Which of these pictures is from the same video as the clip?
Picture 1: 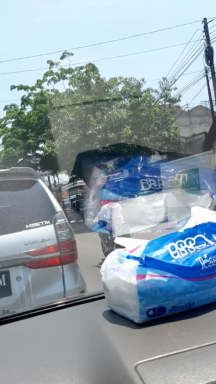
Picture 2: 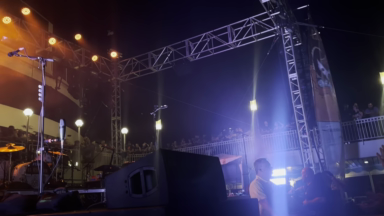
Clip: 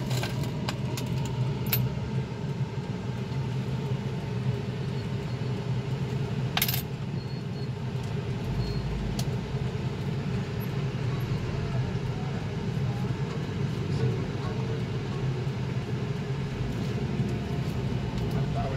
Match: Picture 1